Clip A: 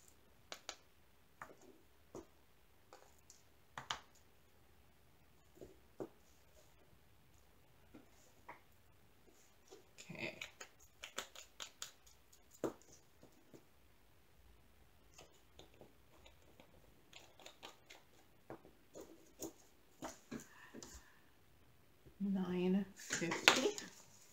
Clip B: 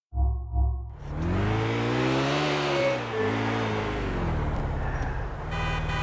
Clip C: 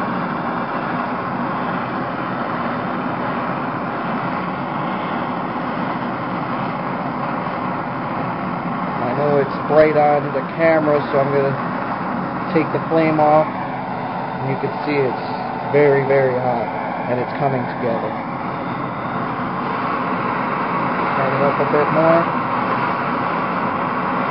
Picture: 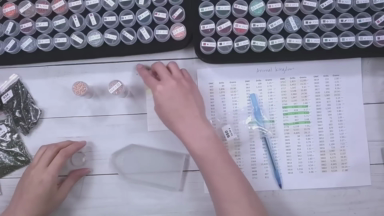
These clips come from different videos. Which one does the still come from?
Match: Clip A